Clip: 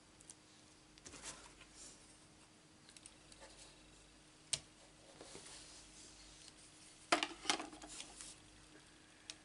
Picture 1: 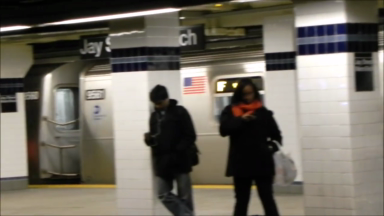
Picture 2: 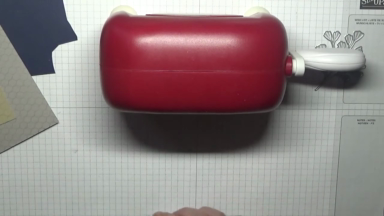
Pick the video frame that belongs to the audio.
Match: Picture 2